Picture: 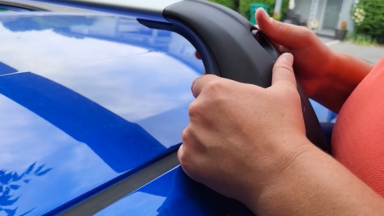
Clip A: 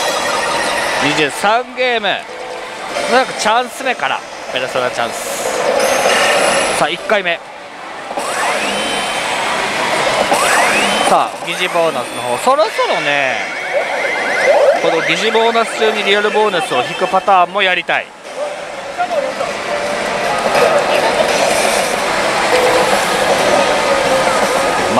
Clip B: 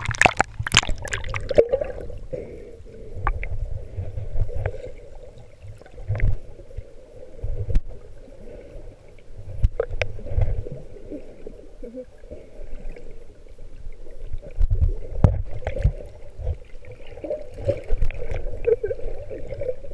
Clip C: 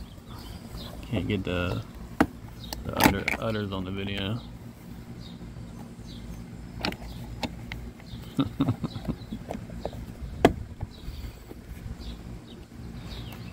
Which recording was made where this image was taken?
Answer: C